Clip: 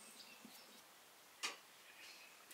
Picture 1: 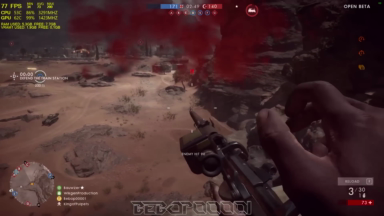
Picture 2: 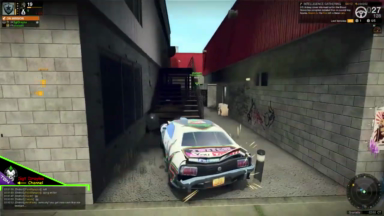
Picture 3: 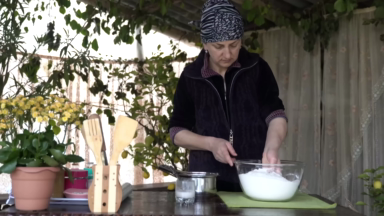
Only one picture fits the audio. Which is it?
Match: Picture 3